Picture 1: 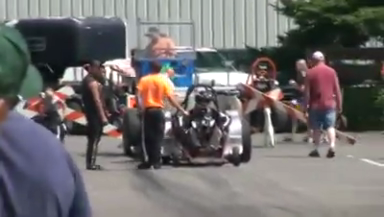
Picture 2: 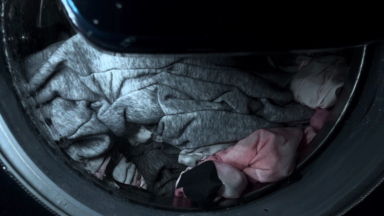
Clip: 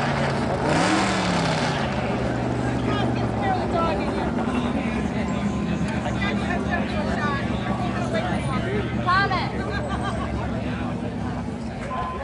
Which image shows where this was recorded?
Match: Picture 1